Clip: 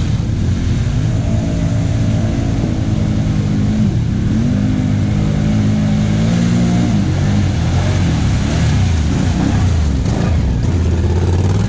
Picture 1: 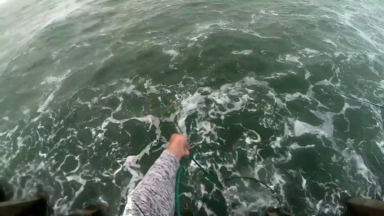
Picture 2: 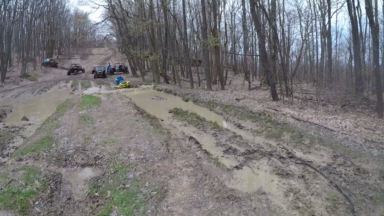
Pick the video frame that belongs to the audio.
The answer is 2